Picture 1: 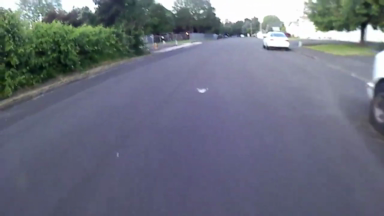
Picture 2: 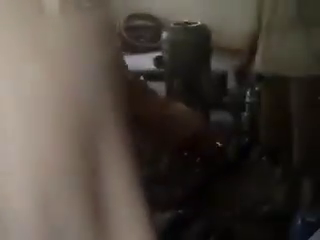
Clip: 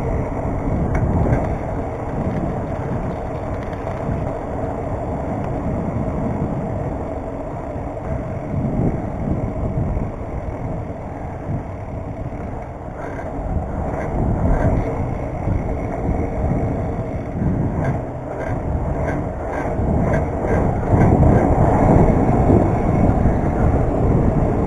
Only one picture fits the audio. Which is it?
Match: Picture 1